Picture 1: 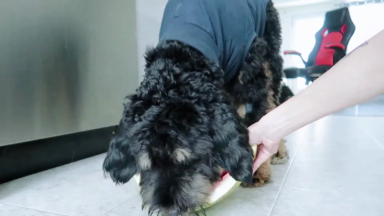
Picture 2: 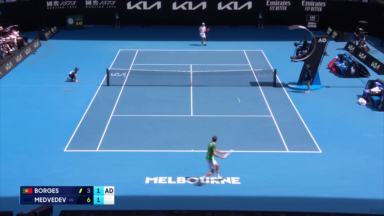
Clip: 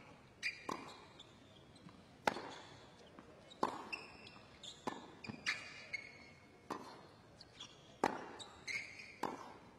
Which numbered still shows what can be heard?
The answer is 2